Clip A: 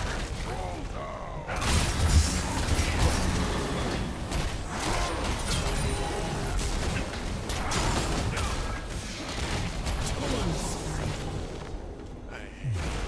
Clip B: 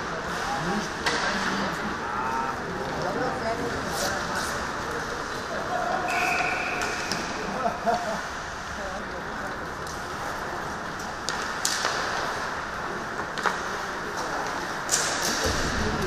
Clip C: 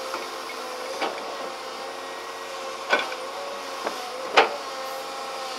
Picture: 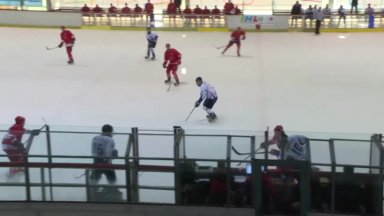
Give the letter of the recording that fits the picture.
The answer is B